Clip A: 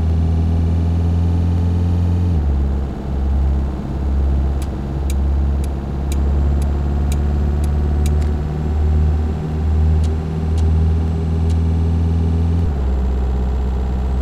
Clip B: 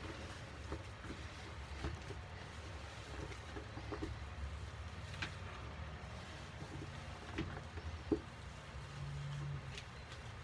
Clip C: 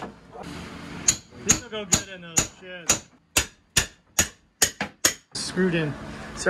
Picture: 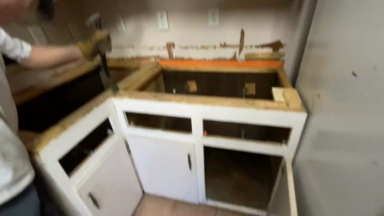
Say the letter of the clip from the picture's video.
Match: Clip C